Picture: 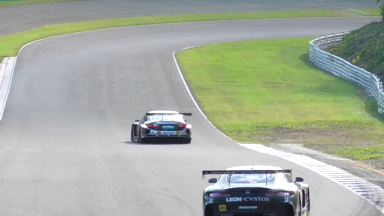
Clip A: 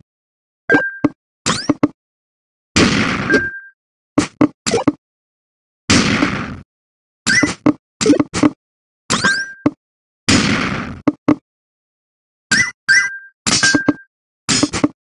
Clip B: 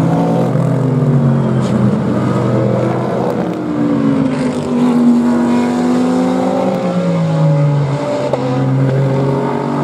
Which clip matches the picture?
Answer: B